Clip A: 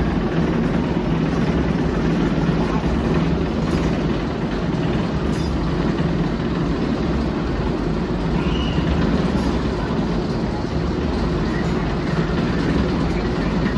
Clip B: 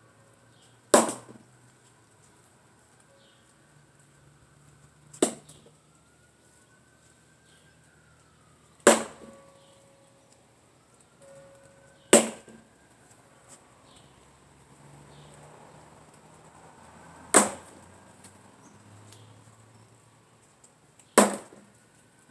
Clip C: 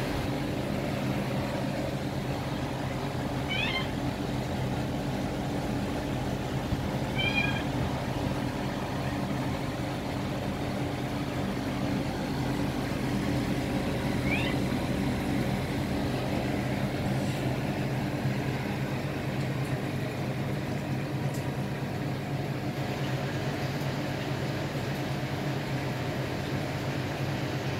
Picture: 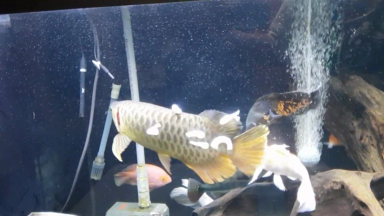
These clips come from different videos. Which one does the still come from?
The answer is C